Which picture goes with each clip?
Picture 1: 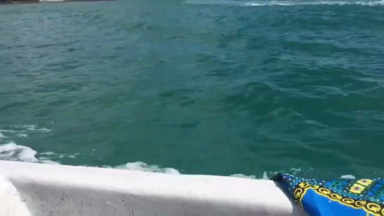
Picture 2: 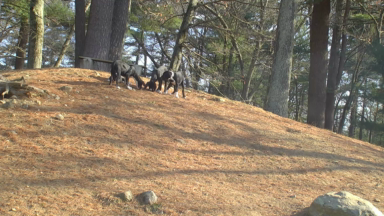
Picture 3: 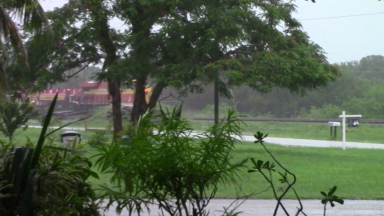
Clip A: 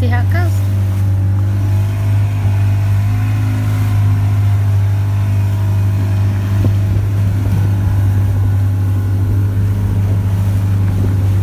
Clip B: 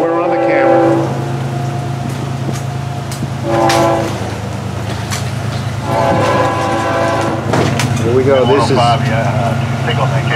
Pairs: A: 1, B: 3